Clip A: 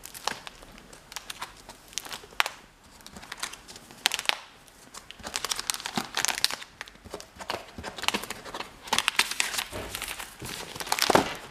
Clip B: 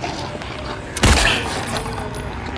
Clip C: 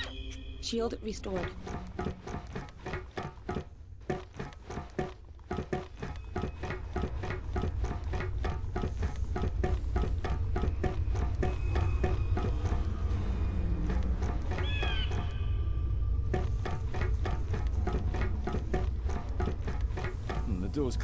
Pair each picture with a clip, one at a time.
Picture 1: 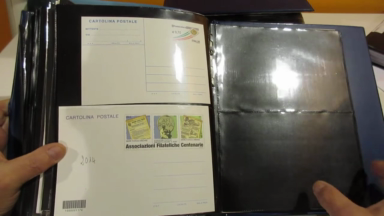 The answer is A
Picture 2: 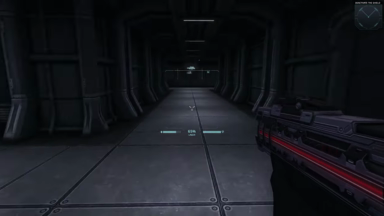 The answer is C